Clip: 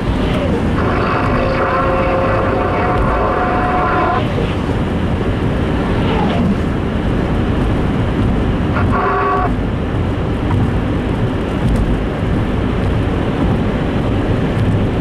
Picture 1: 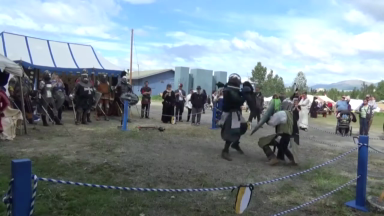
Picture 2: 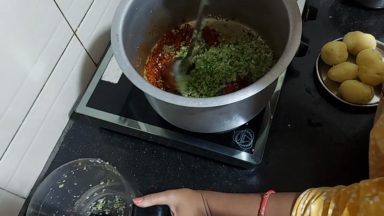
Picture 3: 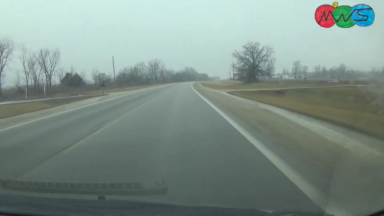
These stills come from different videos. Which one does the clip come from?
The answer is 3